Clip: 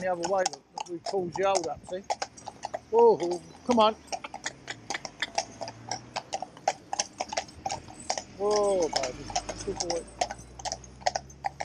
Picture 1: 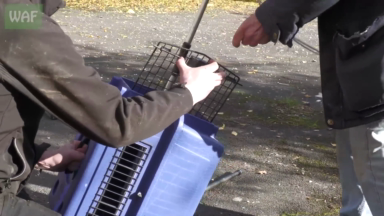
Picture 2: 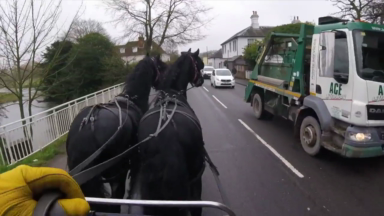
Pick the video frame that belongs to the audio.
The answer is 2